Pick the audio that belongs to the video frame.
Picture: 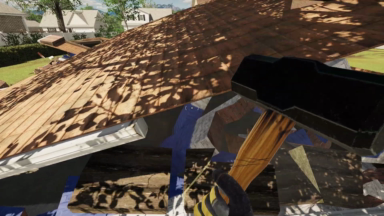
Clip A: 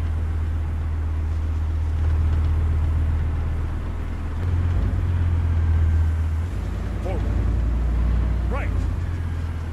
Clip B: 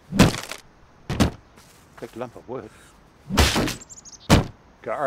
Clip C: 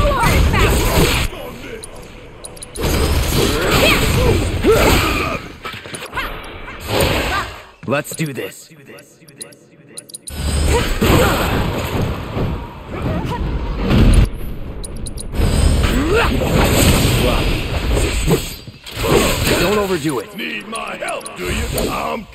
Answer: B